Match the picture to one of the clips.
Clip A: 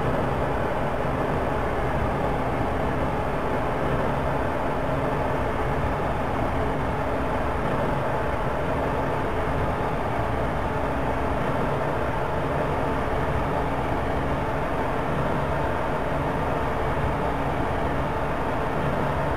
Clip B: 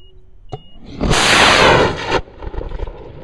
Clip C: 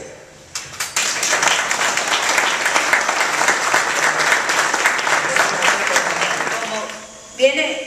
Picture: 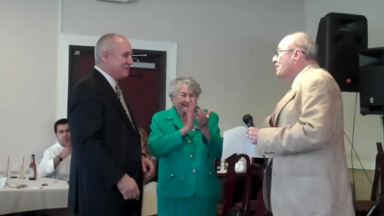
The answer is C